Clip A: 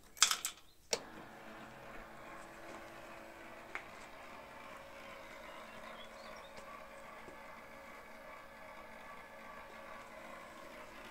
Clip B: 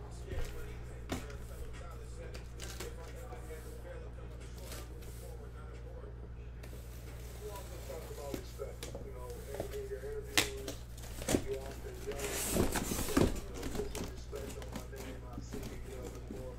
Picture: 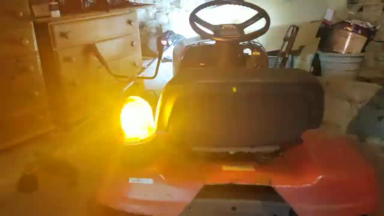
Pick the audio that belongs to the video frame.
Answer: A